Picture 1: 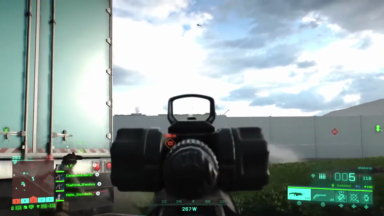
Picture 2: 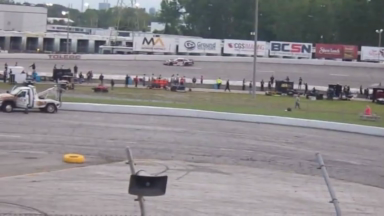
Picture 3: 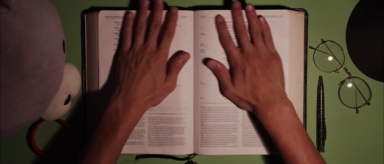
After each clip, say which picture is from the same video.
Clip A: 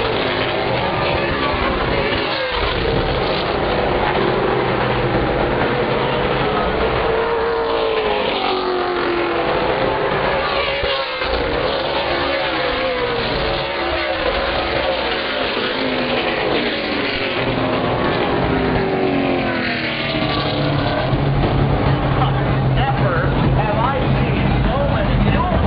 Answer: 2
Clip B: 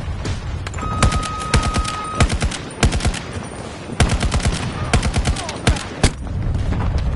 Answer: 1